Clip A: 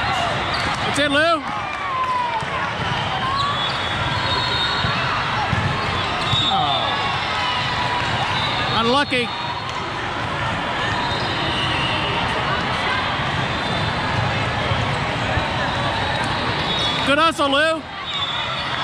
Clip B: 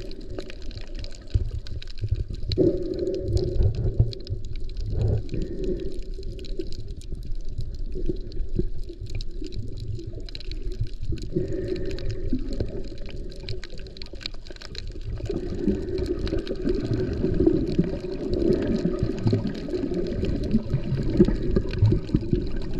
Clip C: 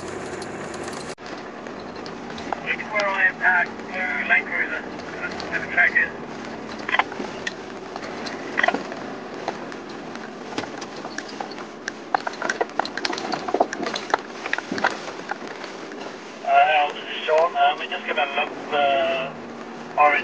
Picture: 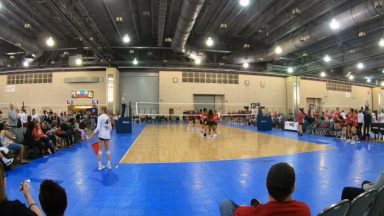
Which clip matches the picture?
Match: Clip A